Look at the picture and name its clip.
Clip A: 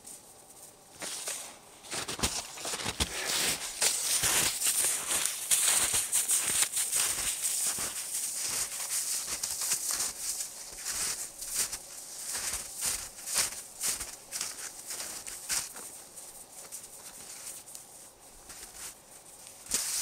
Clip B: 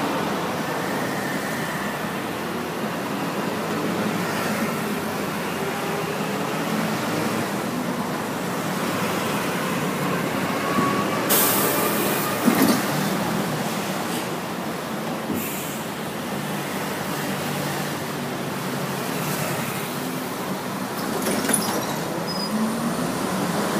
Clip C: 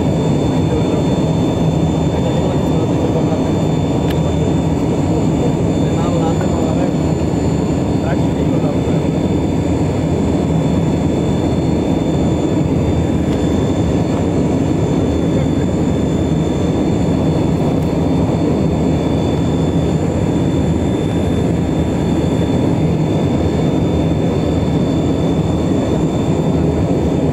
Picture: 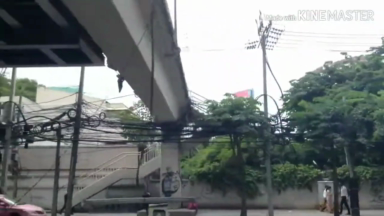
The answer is B